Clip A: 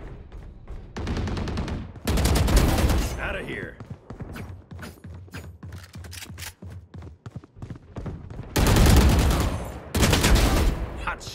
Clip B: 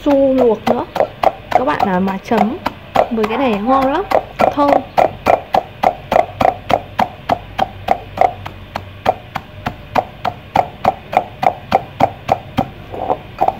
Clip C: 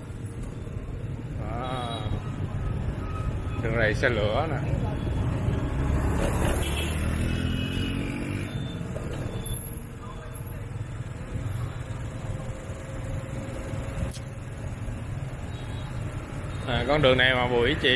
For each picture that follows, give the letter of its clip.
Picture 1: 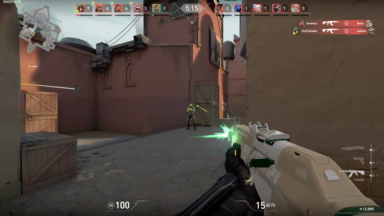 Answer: A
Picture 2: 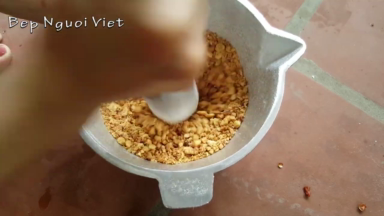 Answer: B